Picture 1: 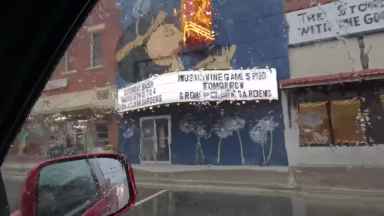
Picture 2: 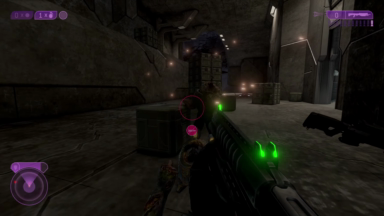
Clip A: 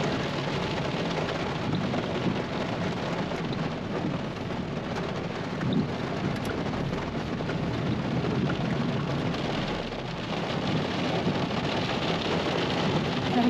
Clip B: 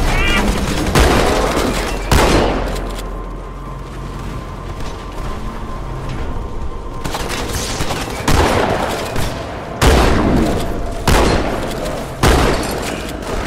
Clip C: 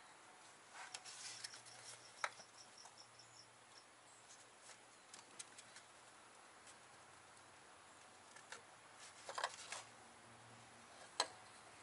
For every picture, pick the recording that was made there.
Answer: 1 A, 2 B